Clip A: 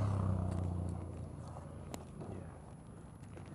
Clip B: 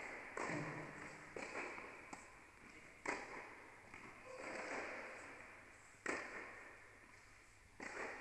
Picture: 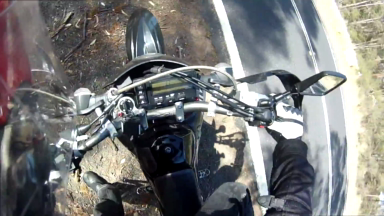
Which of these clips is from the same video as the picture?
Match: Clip A